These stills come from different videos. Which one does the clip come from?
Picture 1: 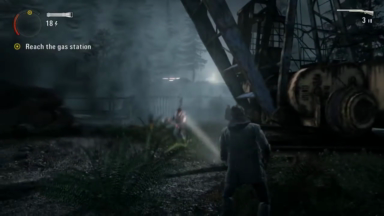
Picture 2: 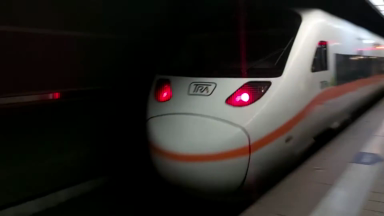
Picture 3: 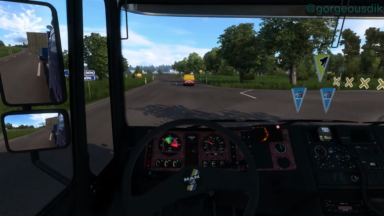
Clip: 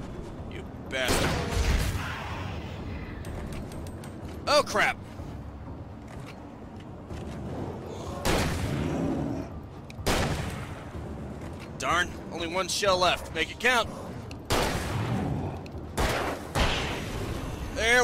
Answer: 1